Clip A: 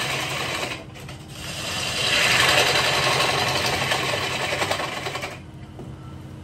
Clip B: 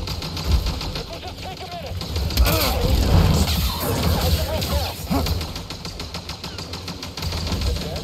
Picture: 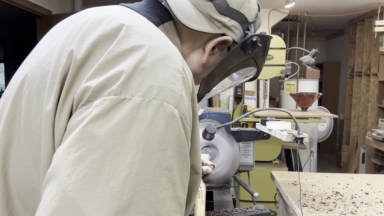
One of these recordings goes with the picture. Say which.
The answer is A